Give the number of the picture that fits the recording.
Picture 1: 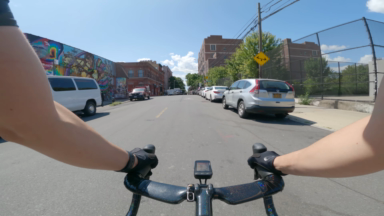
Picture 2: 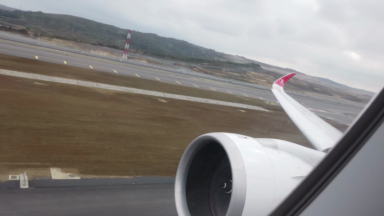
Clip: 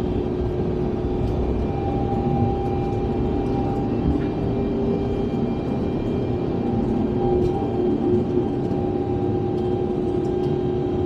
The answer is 2